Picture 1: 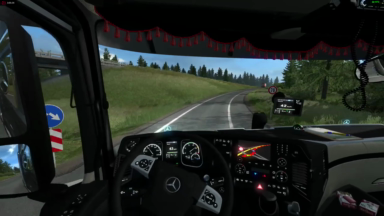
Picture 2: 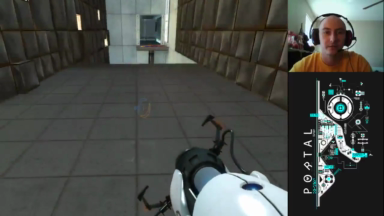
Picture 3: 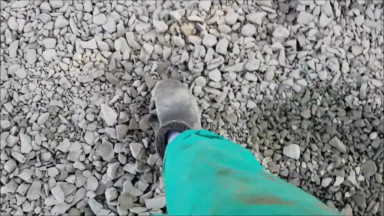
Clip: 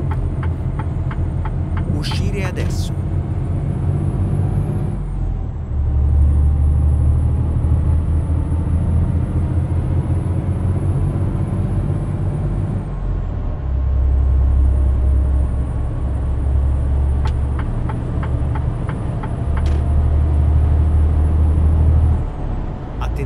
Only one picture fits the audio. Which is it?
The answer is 1